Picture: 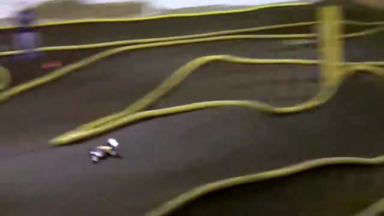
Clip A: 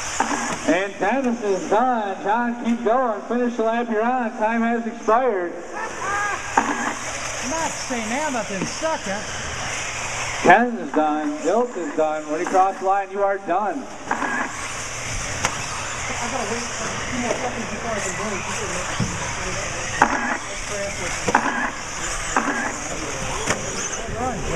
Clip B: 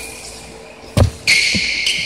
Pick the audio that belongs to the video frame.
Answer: A